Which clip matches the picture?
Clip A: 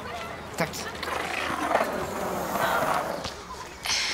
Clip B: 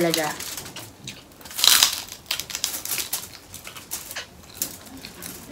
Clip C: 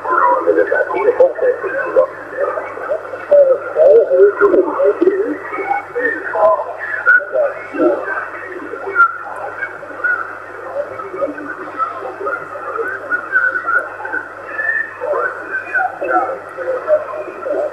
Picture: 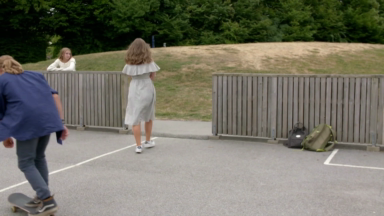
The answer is A